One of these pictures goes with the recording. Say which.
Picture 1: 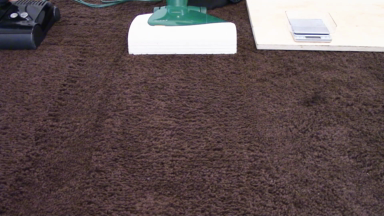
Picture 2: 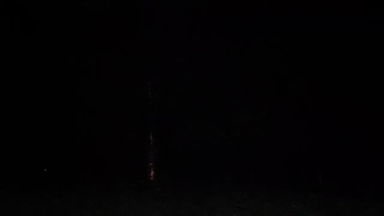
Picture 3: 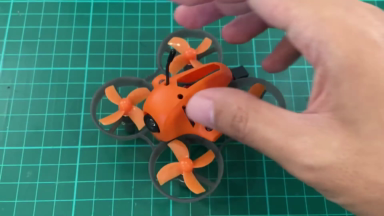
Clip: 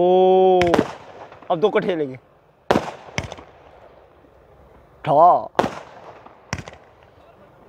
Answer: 2